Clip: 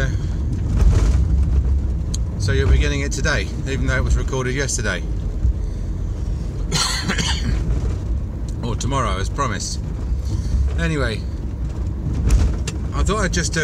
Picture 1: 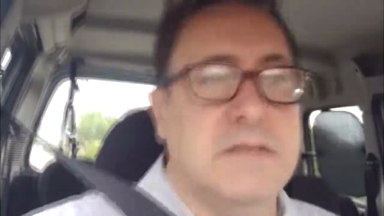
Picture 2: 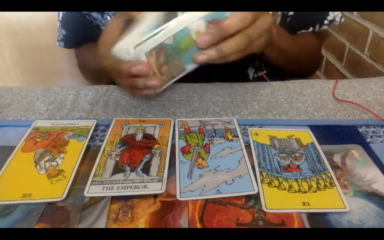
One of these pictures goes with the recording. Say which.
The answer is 1